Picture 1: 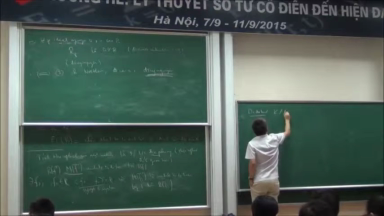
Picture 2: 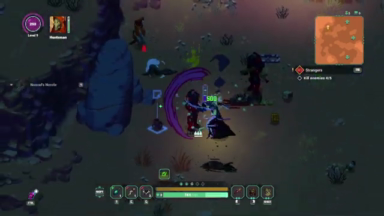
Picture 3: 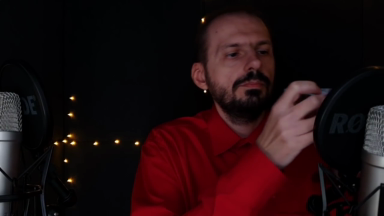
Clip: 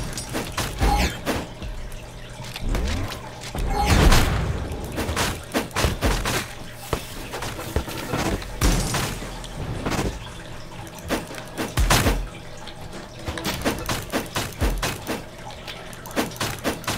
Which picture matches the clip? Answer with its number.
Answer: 2